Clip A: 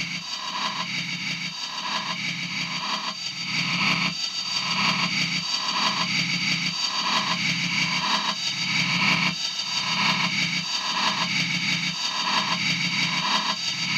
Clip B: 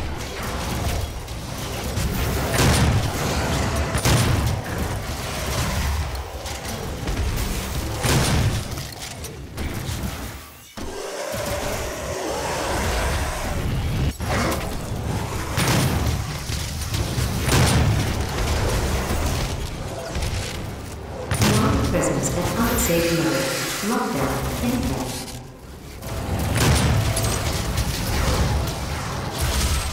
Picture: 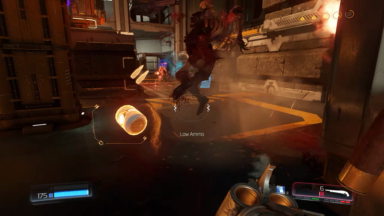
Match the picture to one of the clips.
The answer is B